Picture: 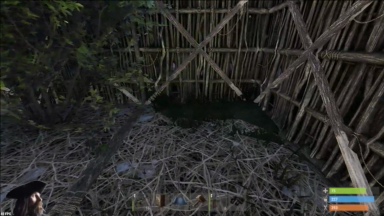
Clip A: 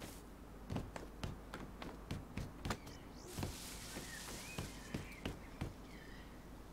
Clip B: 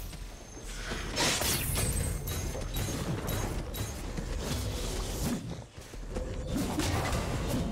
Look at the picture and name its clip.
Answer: A